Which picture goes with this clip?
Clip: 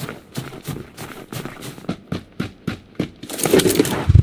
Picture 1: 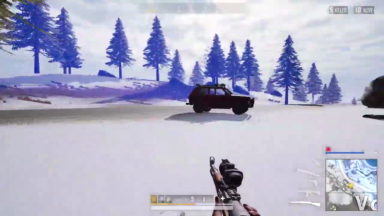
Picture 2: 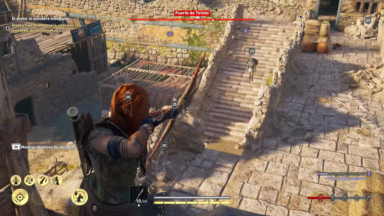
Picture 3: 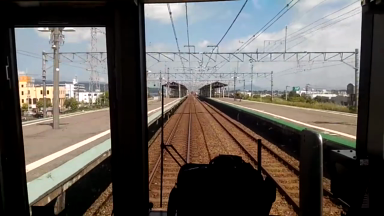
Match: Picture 1